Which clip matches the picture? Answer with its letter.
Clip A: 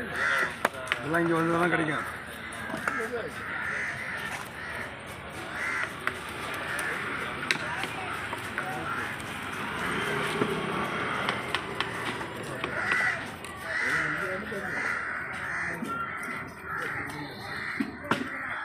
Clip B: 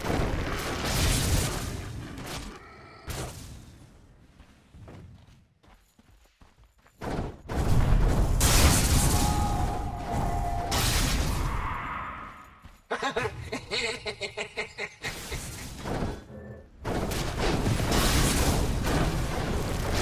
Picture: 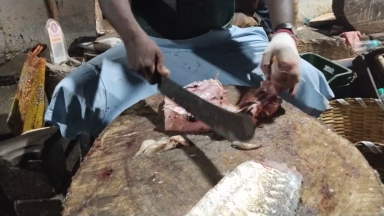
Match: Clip A